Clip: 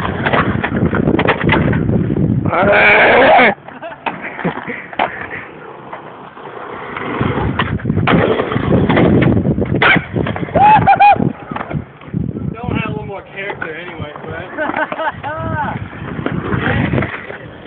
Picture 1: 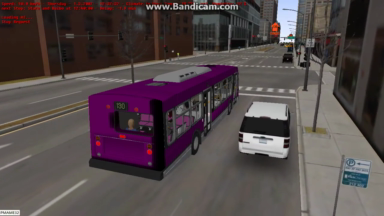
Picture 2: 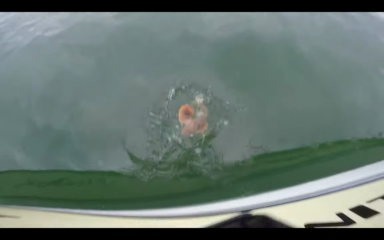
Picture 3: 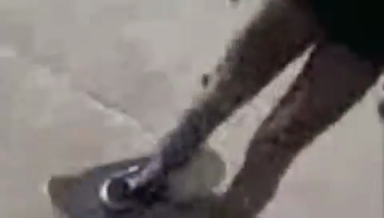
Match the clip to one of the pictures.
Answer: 3